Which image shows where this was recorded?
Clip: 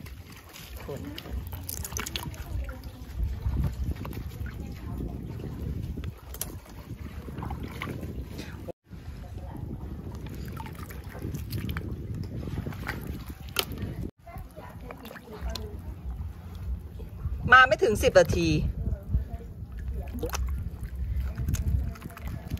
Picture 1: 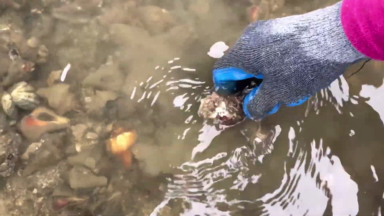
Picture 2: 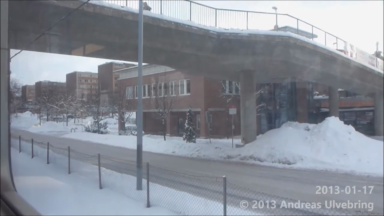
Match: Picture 1